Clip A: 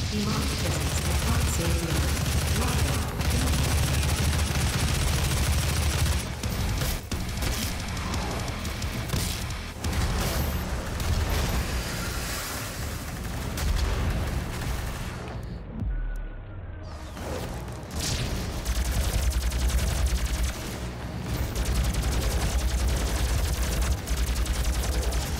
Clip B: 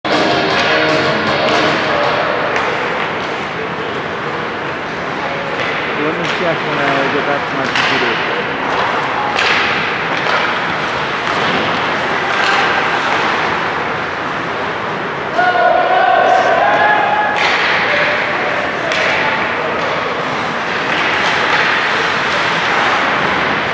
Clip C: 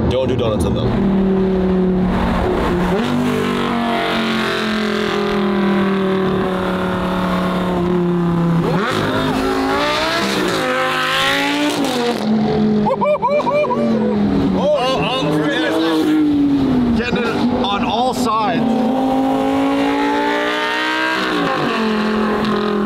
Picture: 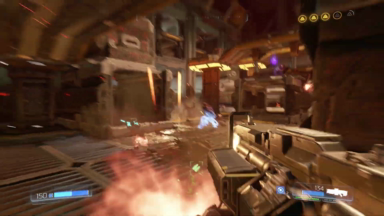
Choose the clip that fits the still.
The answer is A